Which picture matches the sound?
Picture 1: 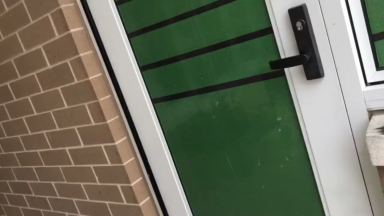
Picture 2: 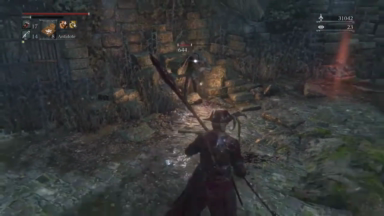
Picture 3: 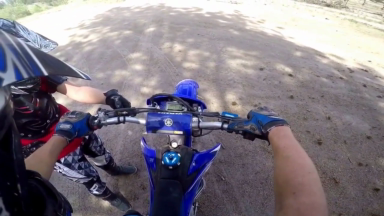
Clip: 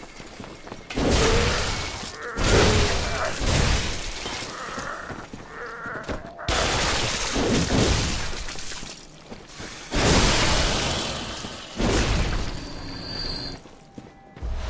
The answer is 2